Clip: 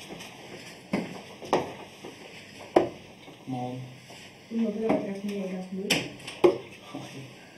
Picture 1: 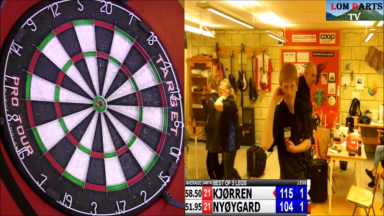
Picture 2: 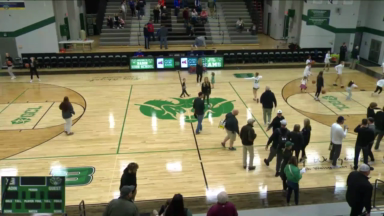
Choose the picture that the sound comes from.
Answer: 1